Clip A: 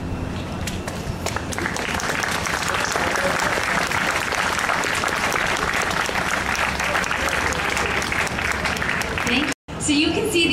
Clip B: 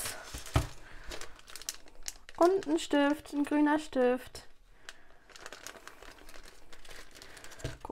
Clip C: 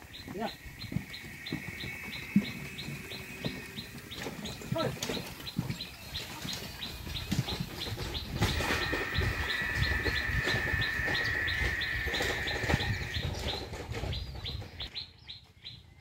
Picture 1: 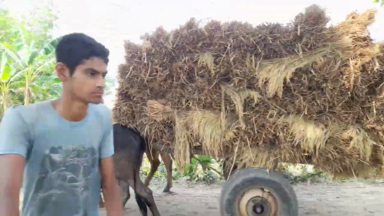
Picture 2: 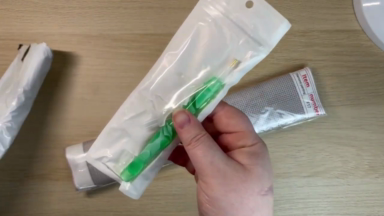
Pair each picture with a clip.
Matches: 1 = C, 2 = B